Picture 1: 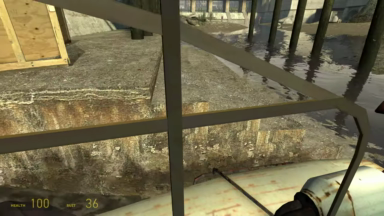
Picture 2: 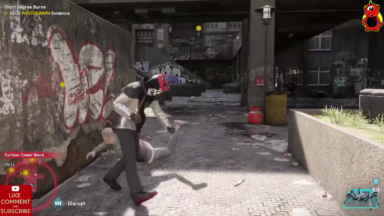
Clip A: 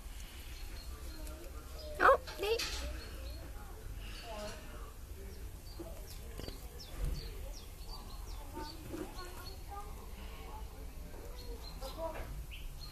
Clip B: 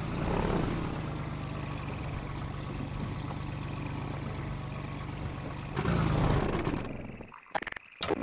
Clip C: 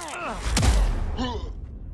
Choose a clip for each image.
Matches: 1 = B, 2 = C